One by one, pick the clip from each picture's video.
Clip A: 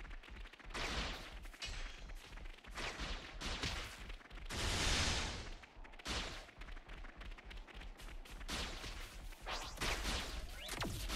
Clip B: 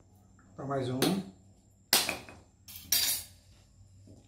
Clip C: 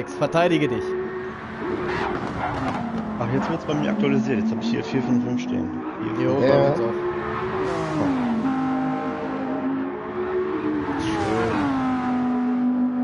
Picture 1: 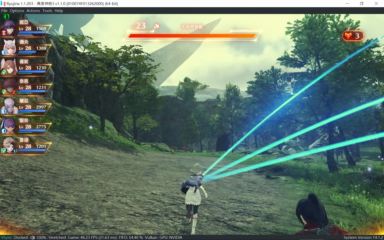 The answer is A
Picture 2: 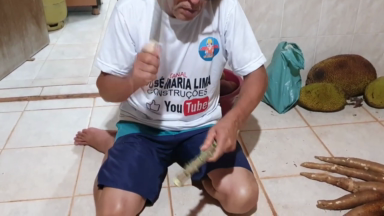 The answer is B